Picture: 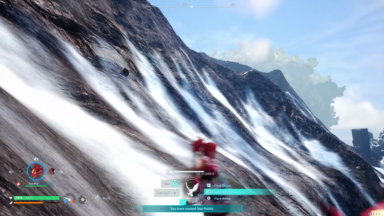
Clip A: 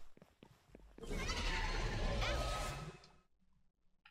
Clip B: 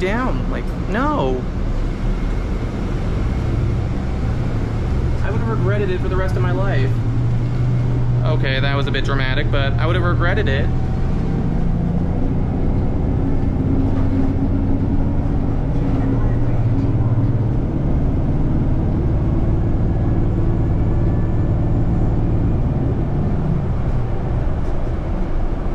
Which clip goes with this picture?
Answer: A